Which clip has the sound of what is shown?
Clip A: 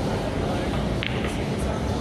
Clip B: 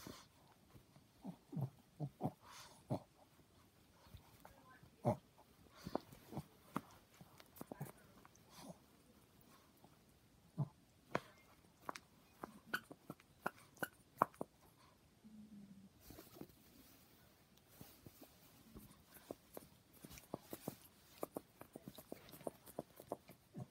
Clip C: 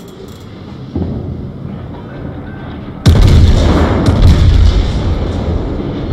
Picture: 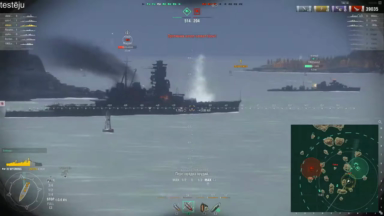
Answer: C